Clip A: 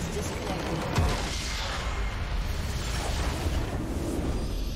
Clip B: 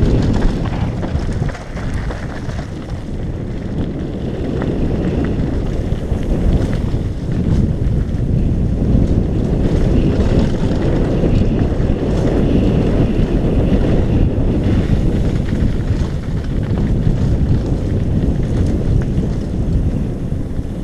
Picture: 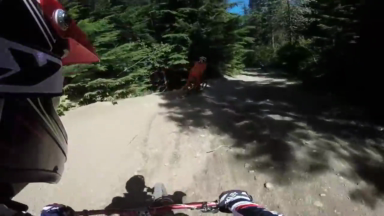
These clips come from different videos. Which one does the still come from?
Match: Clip B